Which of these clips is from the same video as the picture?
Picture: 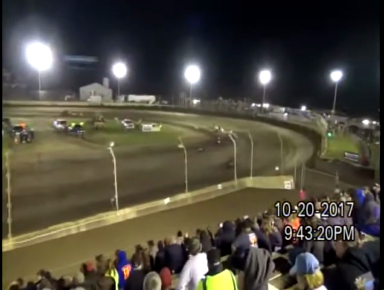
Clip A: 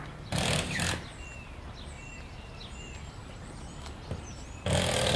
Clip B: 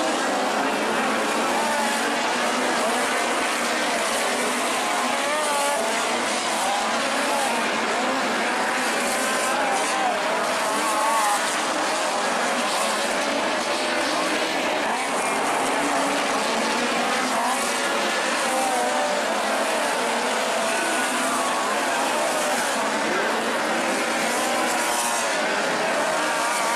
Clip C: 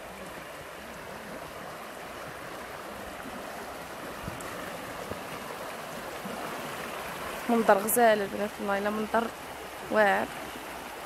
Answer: B